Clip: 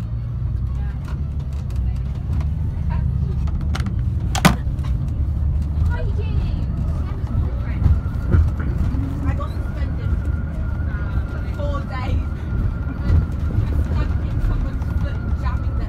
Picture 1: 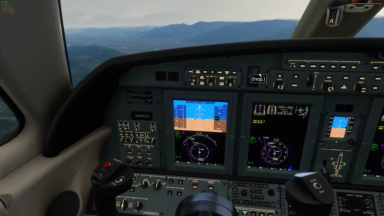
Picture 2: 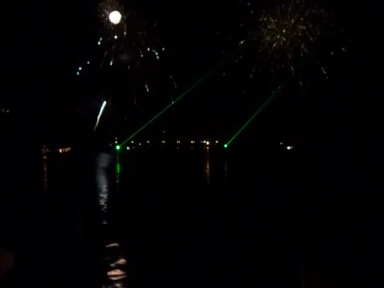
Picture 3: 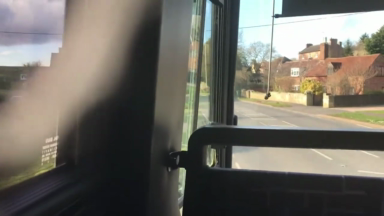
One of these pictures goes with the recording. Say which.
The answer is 3